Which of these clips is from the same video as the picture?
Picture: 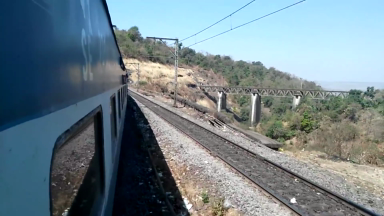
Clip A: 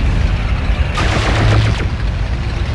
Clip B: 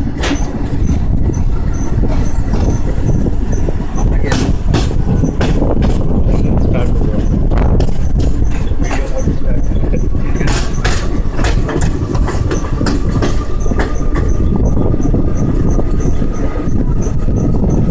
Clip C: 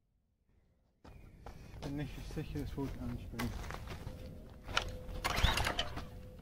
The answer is B